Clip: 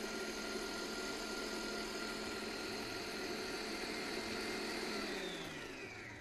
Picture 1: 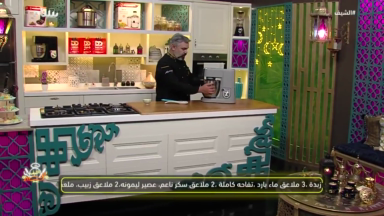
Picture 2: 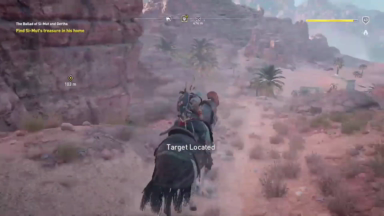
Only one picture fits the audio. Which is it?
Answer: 1